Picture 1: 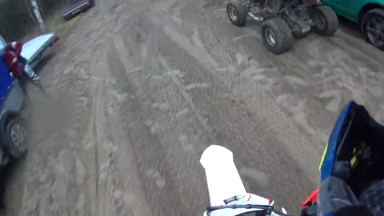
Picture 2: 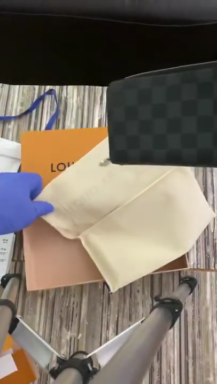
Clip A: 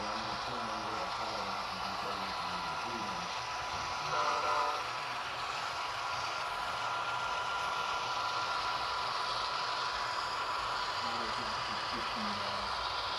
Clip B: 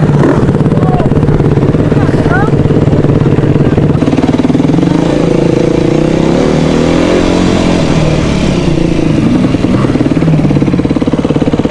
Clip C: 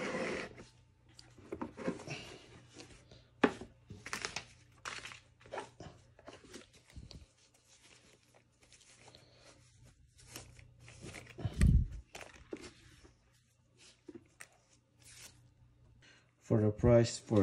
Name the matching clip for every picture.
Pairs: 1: B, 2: C